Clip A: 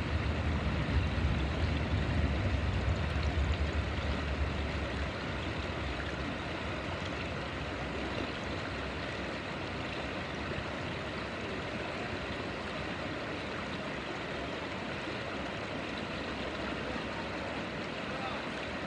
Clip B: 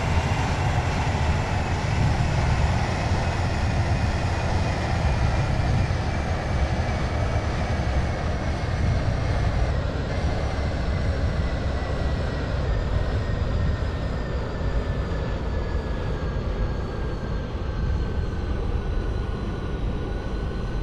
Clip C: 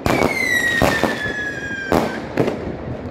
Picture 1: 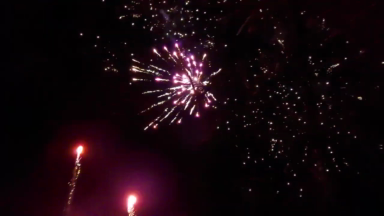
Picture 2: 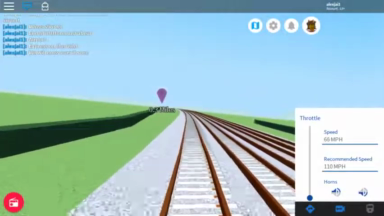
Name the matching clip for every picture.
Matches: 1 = C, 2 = B